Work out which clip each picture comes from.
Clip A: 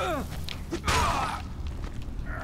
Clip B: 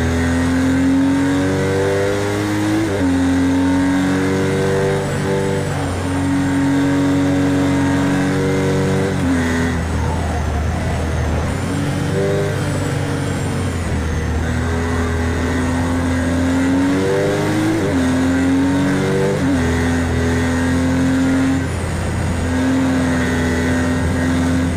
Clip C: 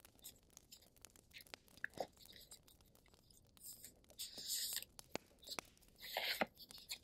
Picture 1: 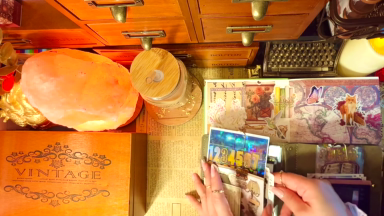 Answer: C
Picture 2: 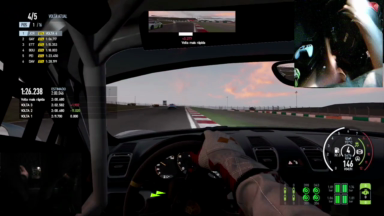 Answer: B